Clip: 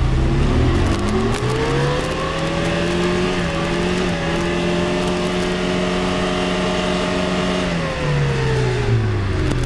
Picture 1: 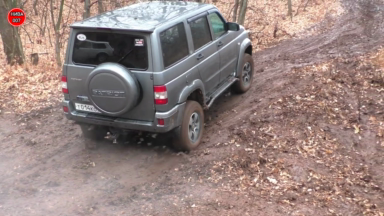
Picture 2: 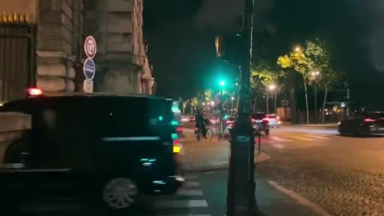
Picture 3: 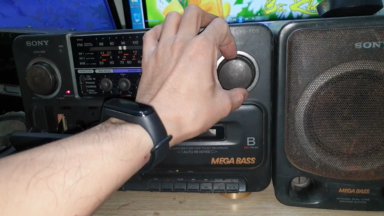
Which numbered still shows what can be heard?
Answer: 1